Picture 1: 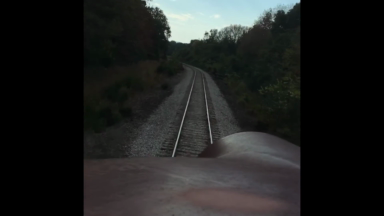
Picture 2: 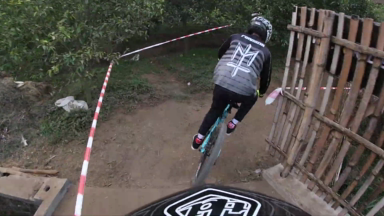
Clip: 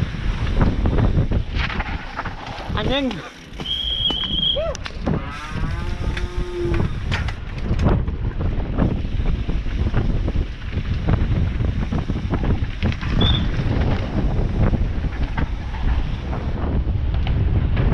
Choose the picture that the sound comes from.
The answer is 2